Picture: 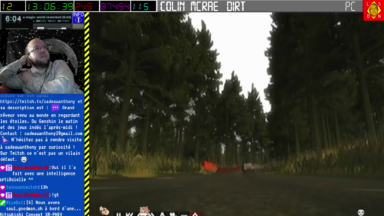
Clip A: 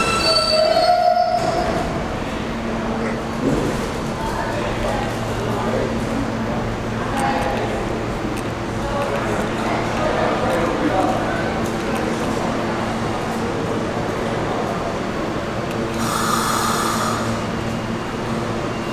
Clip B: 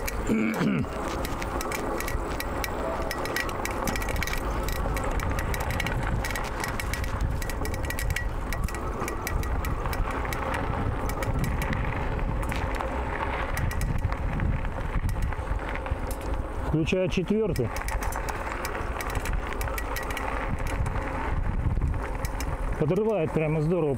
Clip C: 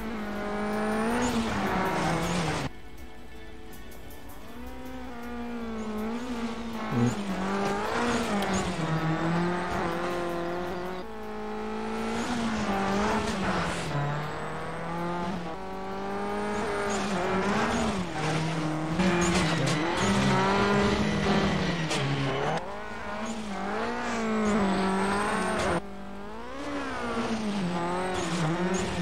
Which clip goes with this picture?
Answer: C